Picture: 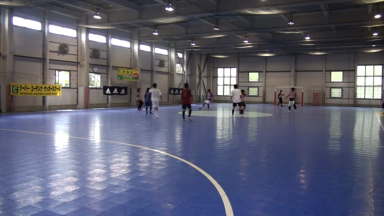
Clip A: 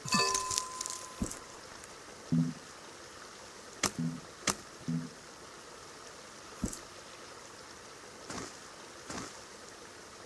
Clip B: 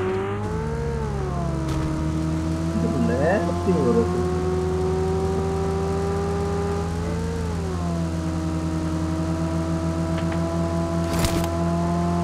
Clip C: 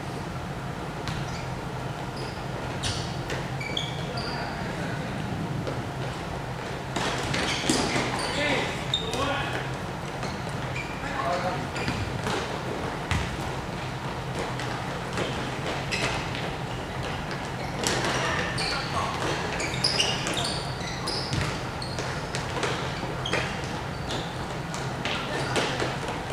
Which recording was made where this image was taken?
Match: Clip C